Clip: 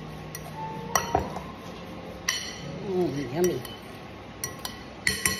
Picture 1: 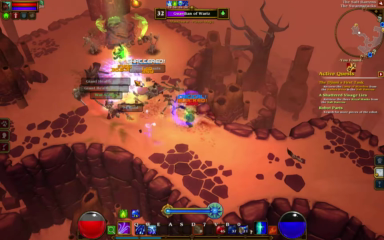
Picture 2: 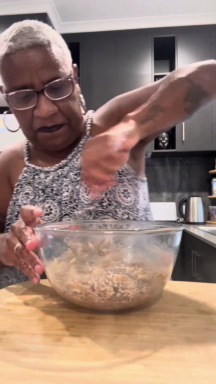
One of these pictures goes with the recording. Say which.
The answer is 2